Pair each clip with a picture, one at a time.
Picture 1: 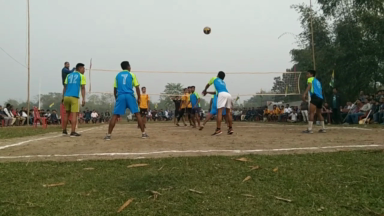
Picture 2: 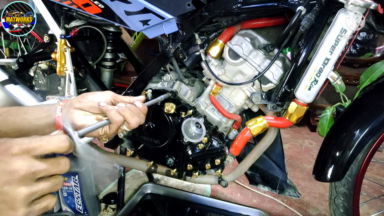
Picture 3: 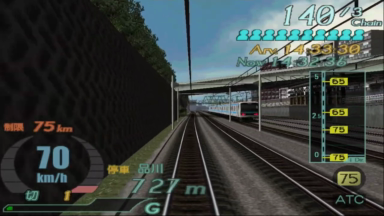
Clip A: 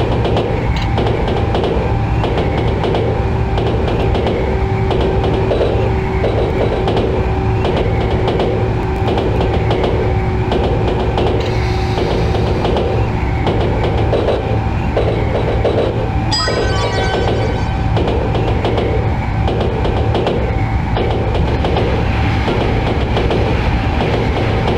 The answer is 3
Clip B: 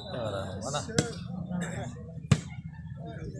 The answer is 1